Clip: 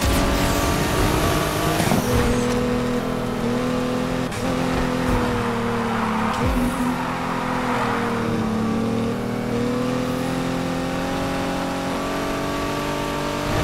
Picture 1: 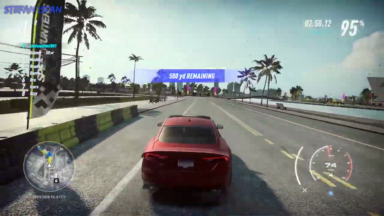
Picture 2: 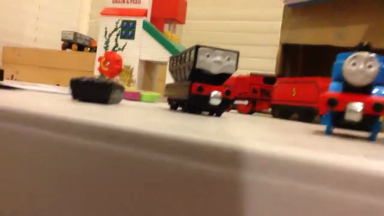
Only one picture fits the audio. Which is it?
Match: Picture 1